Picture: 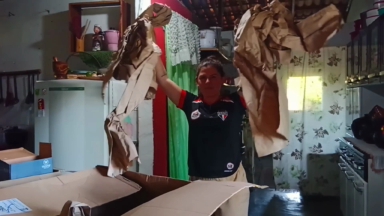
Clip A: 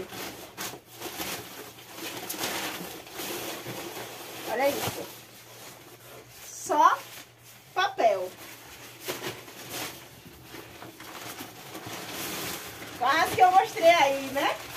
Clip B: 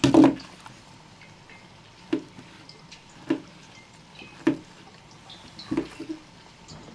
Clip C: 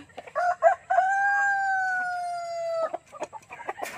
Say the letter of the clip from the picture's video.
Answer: A